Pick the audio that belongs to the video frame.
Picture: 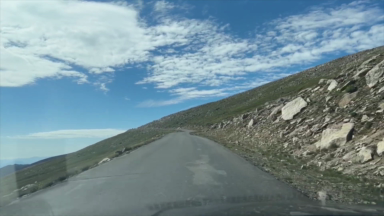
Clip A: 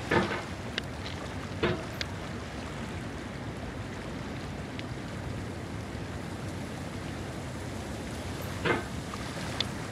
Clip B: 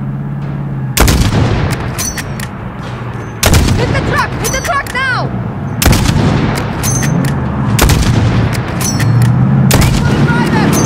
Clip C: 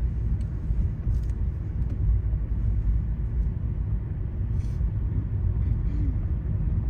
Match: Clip C